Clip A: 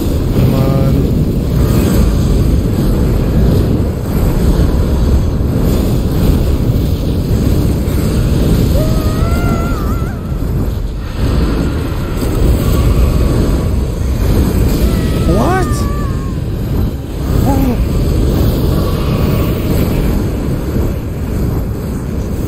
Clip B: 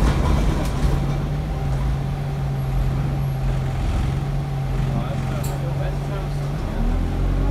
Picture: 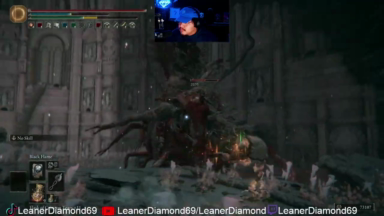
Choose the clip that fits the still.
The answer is A